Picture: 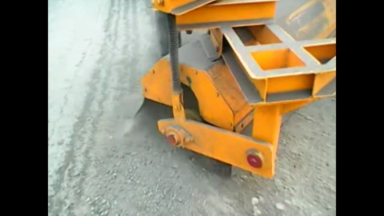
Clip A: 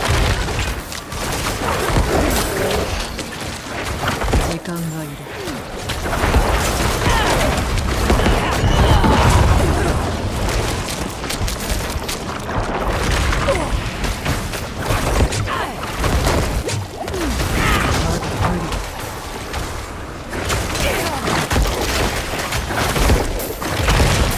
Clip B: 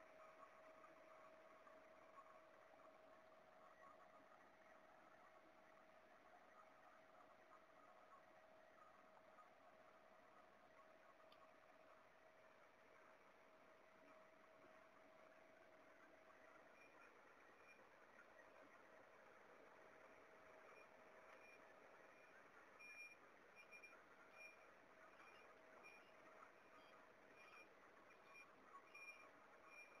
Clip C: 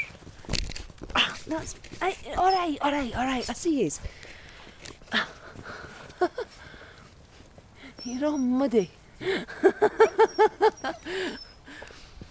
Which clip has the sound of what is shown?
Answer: B